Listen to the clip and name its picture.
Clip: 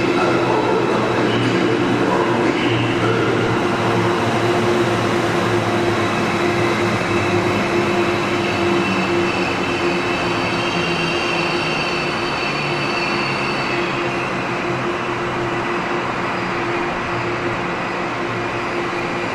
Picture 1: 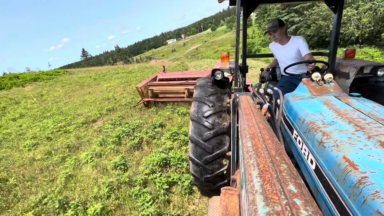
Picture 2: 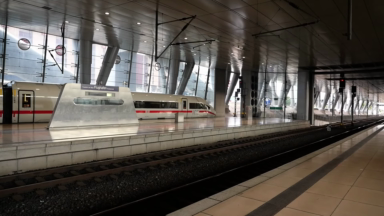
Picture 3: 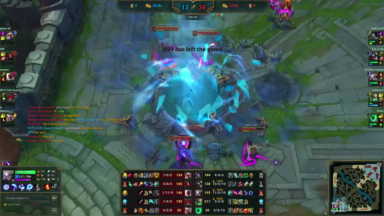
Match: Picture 2